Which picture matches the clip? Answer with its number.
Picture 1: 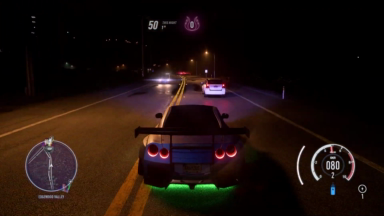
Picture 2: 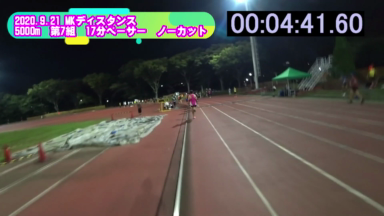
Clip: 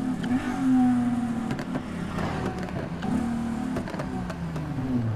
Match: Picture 1